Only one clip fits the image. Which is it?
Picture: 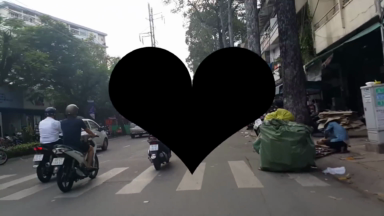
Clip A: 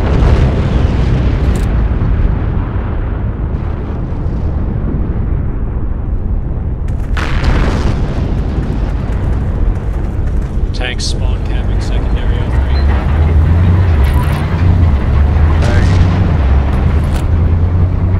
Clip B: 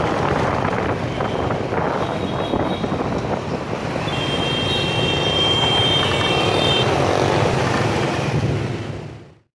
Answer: B